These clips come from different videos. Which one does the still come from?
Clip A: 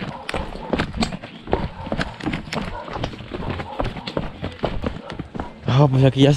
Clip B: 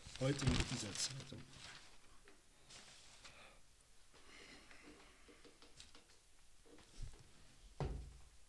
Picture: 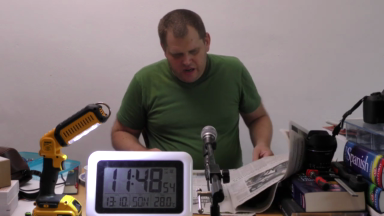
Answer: B